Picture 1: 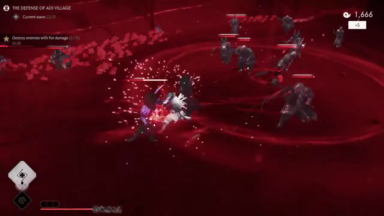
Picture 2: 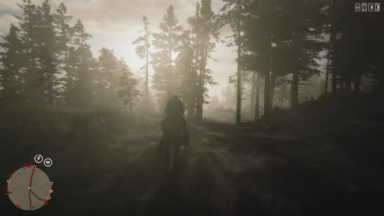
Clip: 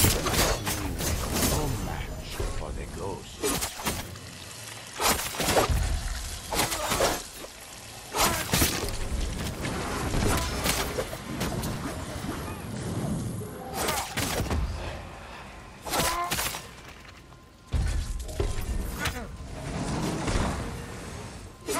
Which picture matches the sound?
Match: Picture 1